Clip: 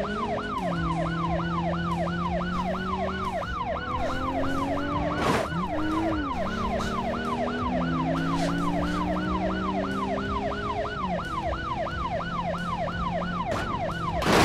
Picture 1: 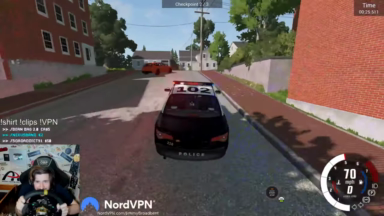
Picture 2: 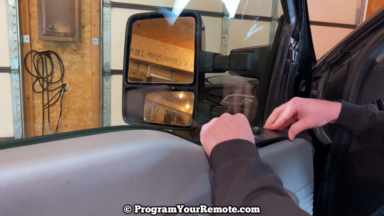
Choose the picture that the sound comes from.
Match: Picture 1